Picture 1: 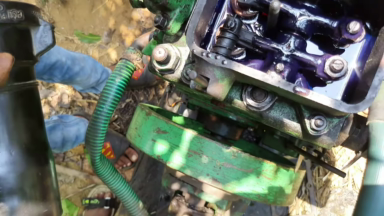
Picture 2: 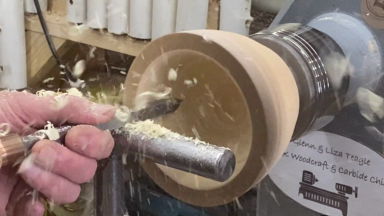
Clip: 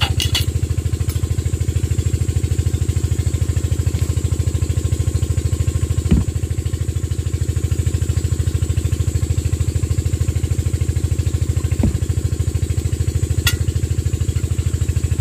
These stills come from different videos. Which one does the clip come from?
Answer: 1